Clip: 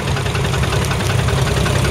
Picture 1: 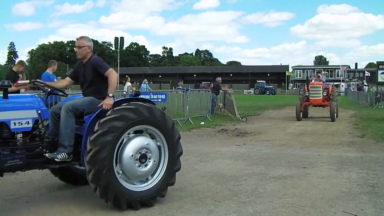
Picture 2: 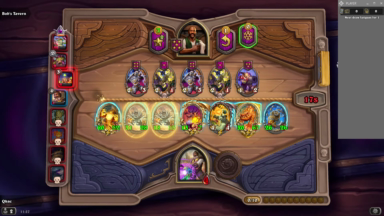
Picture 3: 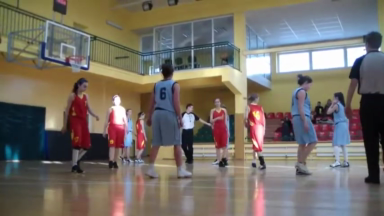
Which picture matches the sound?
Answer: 1